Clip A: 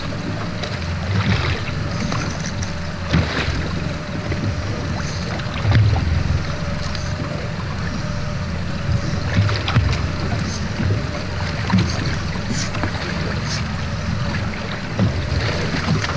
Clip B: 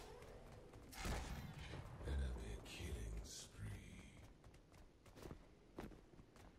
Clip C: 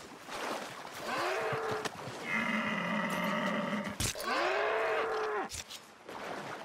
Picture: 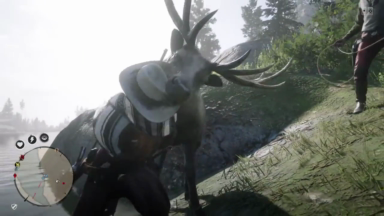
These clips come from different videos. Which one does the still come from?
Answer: C